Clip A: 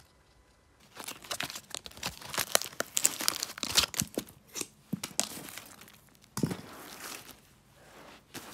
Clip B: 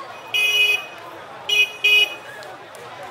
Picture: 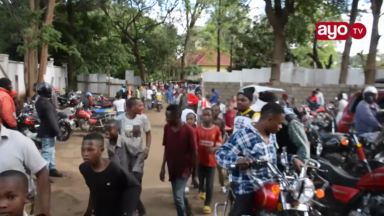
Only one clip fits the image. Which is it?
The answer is B